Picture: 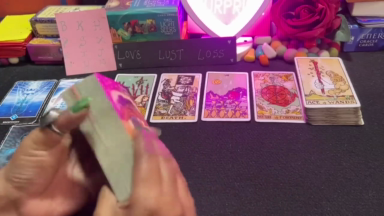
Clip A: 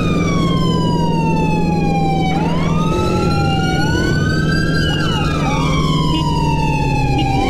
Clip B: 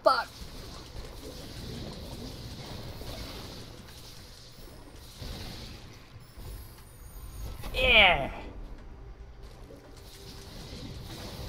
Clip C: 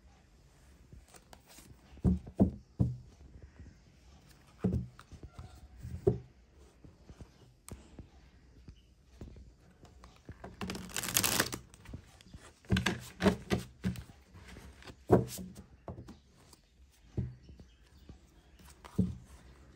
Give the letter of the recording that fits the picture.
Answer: C